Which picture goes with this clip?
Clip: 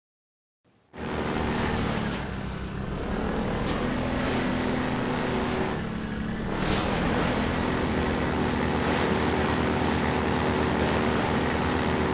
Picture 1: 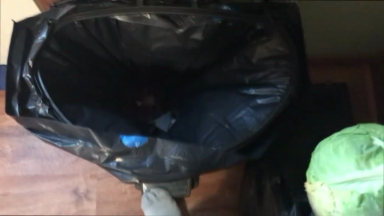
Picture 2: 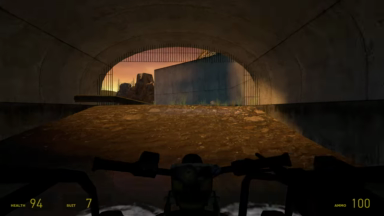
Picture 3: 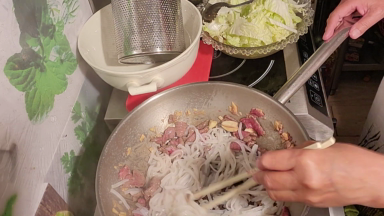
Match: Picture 2